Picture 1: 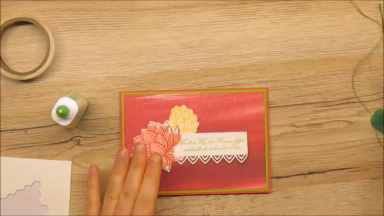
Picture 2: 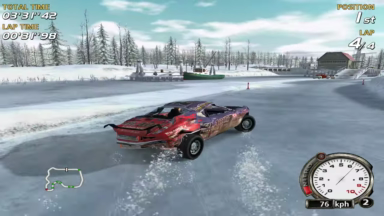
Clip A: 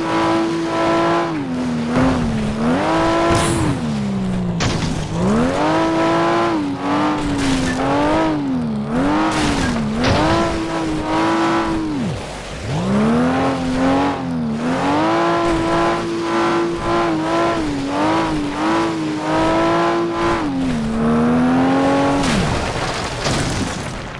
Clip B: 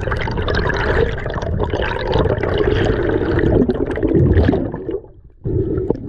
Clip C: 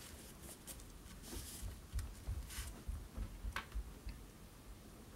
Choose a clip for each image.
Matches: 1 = C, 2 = A